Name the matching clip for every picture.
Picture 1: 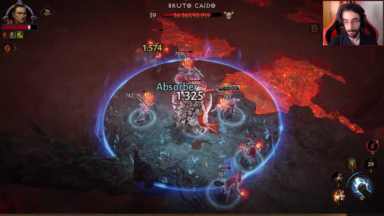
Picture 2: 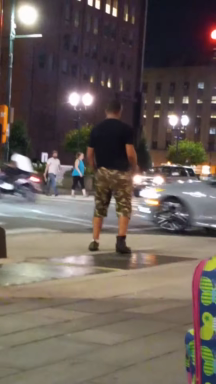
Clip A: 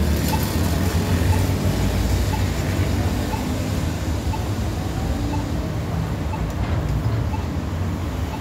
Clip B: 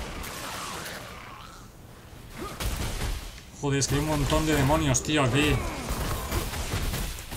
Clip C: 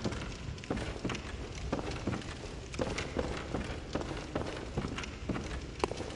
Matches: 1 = B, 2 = A